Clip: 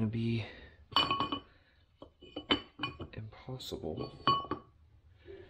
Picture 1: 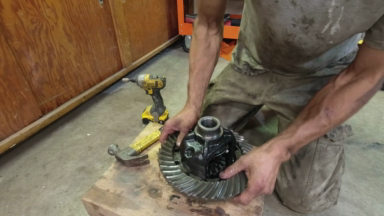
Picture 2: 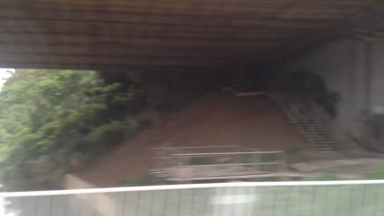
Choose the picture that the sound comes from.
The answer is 1